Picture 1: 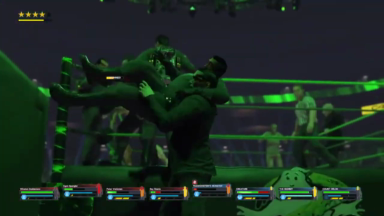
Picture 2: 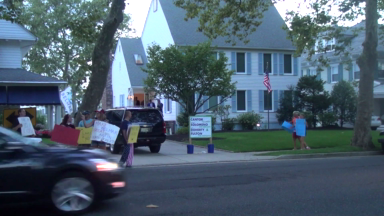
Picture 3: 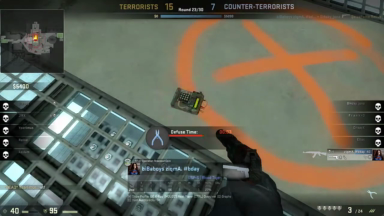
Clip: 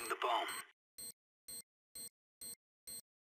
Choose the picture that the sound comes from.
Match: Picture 3